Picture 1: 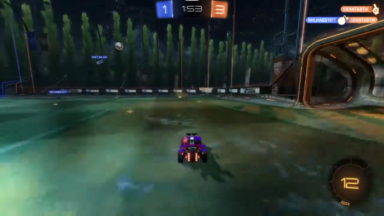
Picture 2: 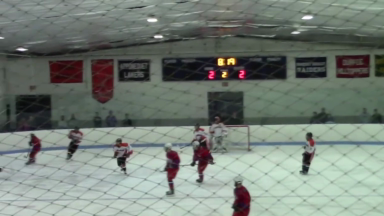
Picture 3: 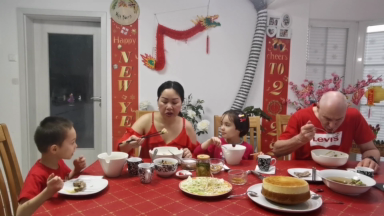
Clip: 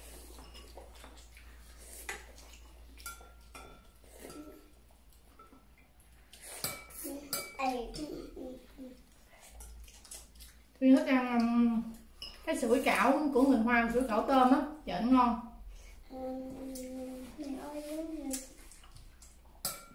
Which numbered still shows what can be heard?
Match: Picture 3